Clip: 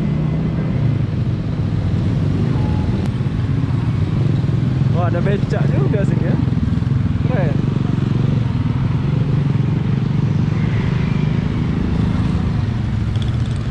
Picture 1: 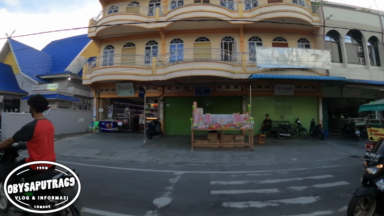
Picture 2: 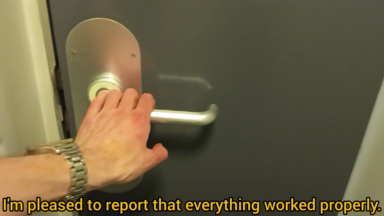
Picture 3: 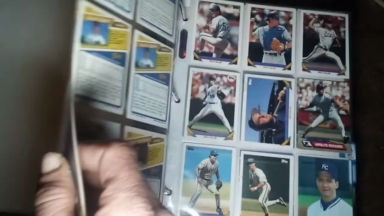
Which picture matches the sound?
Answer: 1